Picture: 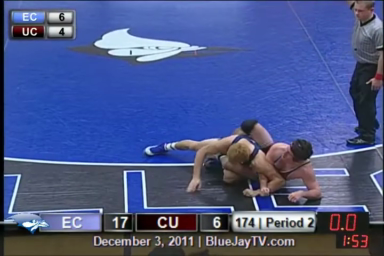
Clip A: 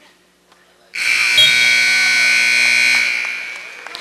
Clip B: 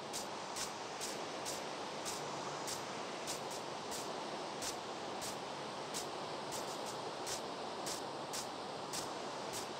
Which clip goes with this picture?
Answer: A